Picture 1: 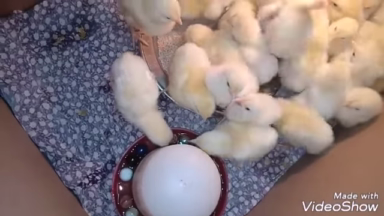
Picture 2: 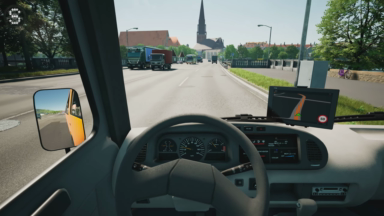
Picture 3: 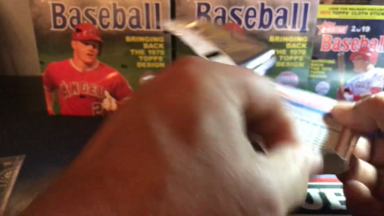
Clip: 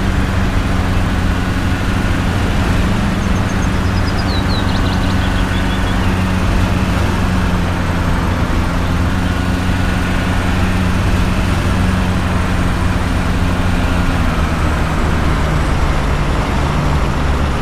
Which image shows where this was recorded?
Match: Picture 2